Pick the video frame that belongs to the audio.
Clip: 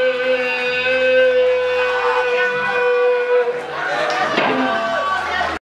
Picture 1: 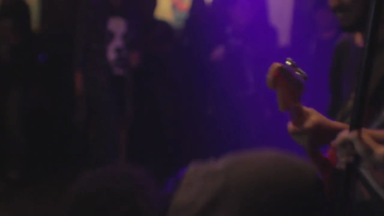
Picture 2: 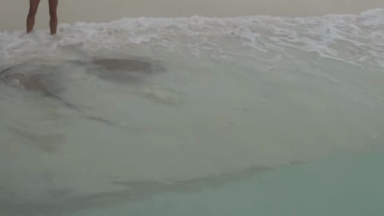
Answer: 1